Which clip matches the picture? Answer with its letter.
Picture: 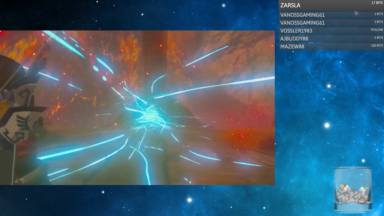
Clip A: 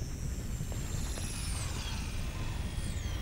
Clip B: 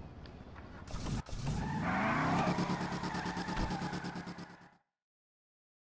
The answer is A